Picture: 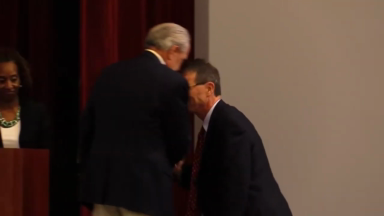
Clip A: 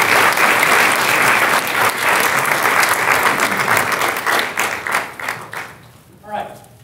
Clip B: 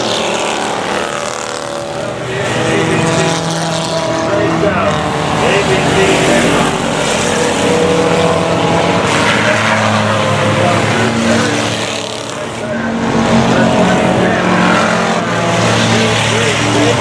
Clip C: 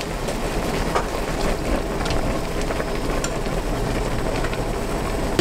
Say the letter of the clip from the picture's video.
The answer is A